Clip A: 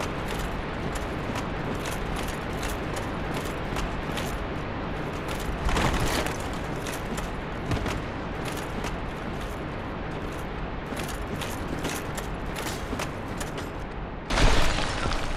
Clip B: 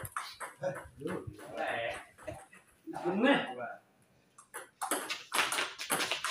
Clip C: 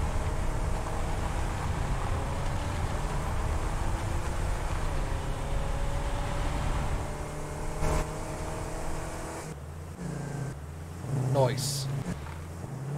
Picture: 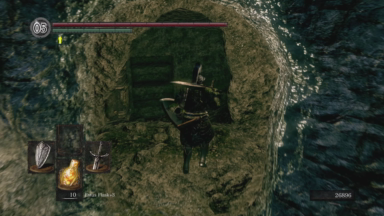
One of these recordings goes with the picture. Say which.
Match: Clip A